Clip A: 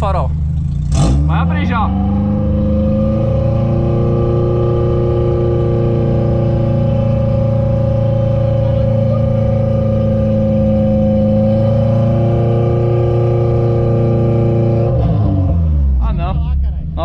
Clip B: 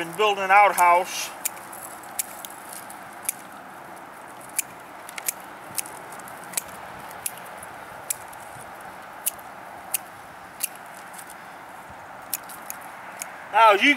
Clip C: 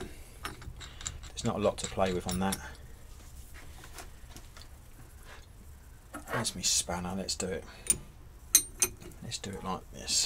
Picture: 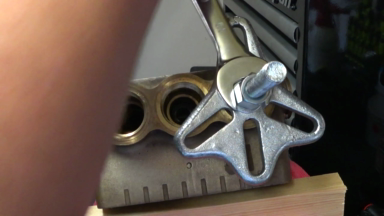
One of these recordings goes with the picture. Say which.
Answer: C